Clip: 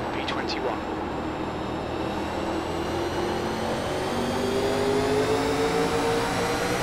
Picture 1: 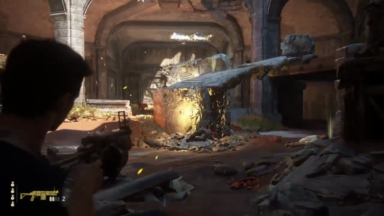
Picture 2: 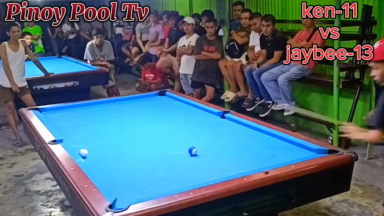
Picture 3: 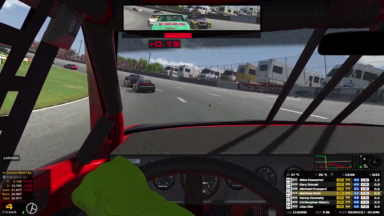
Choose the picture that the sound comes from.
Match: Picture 3